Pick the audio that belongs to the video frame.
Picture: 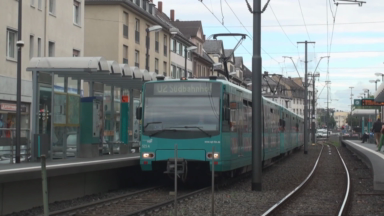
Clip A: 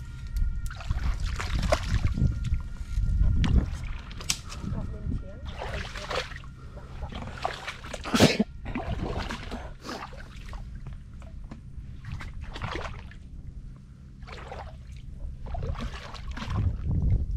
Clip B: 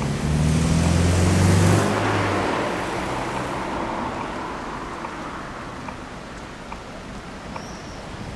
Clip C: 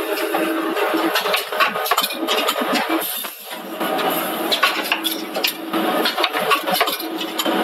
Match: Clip B